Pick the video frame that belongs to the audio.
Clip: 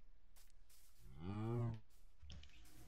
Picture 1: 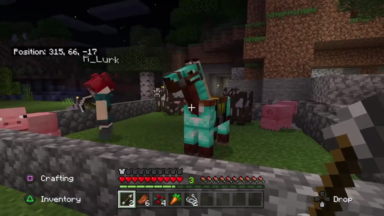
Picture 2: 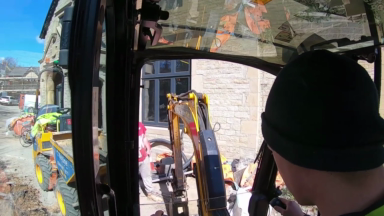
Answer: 1